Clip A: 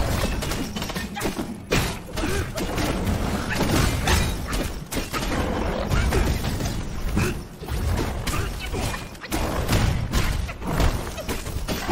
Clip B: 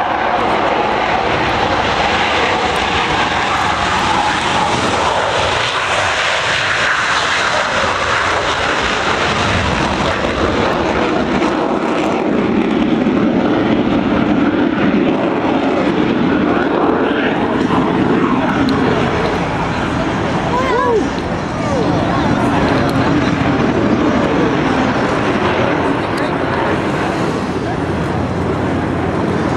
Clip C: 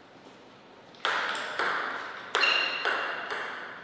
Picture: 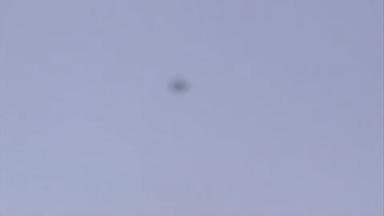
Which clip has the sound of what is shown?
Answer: B